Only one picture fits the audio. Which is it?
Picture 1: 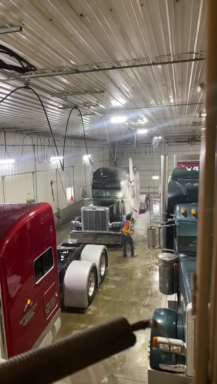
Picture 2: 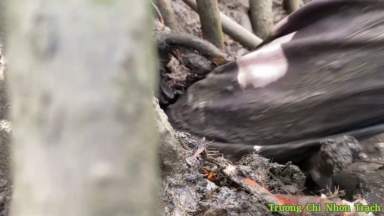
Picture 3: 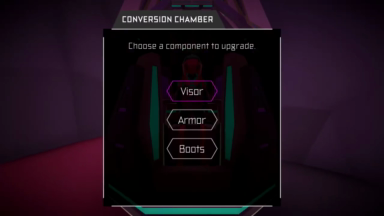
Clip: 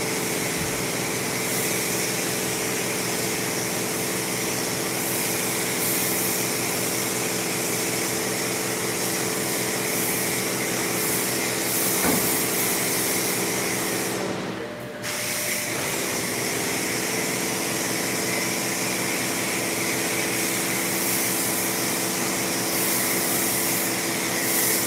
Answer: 1